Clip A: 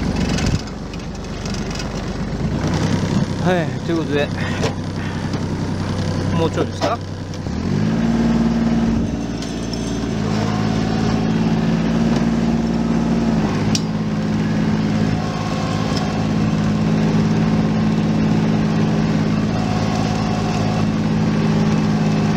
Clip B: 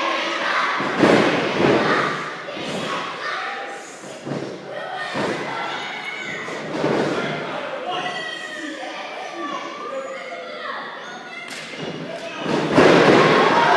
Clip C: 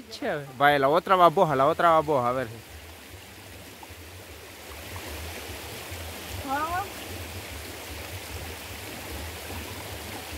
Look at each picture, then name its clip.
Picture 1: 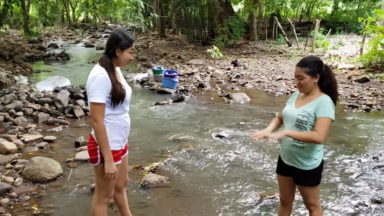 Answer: C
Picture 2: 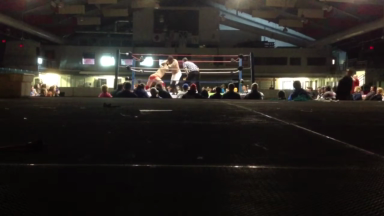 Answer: B